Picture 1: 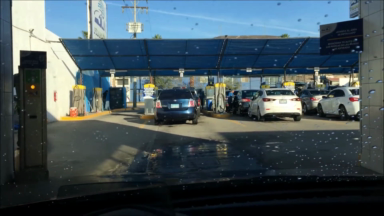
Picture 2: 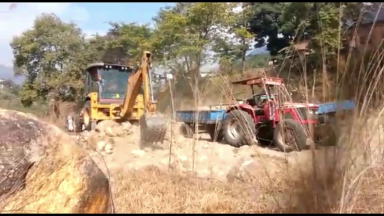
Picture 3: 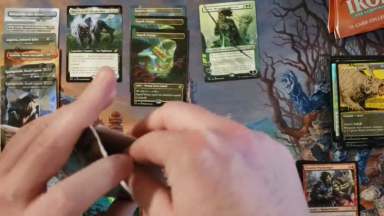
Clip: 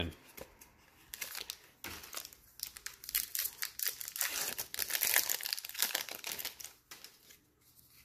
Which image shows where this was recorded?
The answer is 3